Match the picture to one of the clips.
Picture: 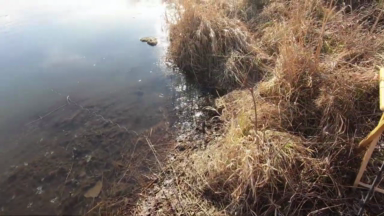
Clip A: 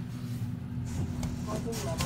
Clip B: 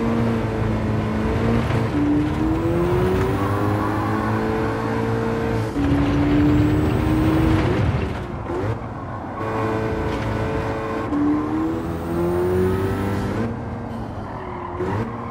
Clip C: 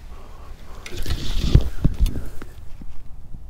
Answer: C